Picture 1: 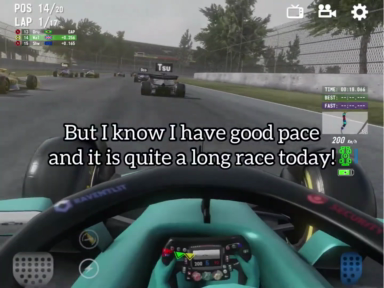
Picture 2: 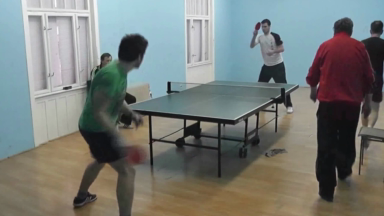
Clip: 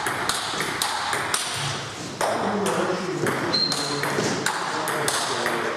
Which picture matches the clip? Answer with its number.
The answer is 2